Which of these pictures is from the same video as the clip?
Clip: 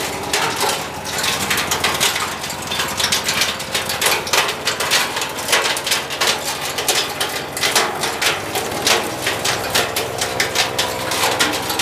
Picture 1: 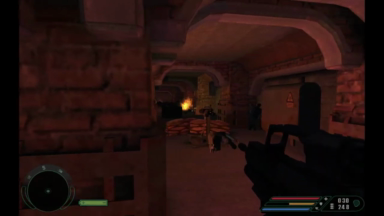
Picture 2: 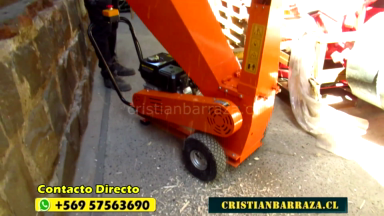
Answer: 2